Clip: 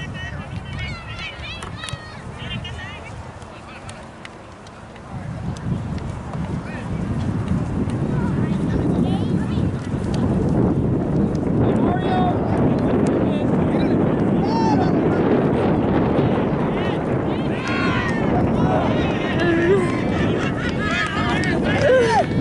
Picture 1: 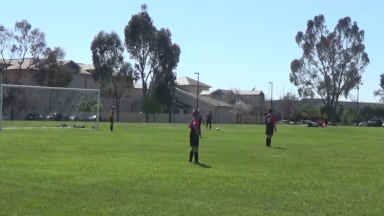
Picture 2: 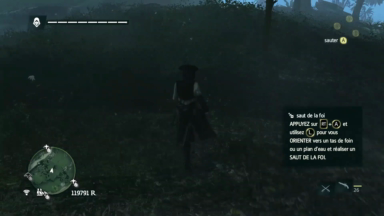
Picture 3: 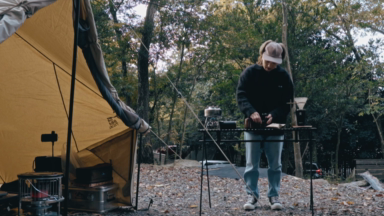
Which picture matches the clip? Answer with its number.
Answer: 1